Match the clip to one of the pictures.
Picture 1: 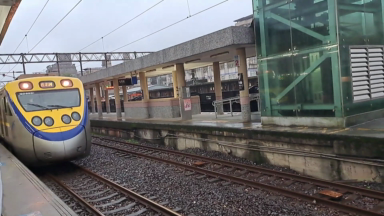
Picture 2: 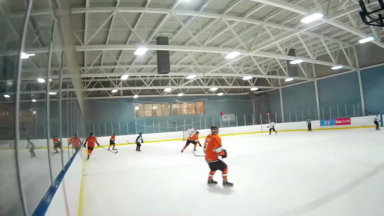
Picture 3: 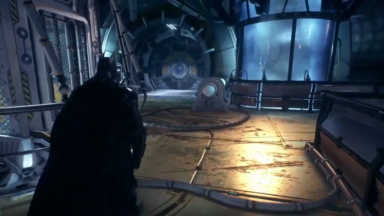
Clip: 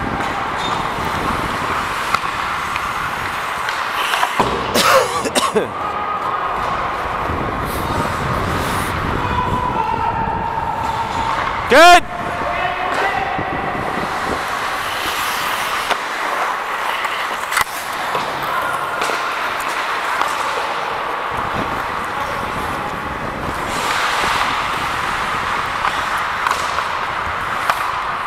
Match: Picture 2